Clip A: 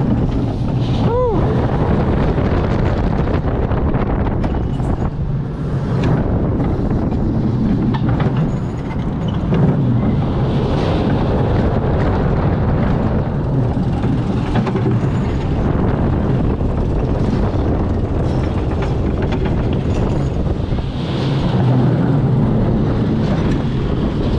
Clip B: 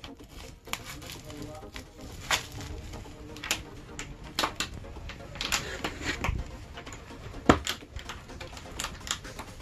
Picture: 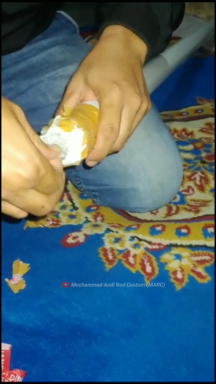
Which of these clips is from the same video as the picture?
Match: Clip B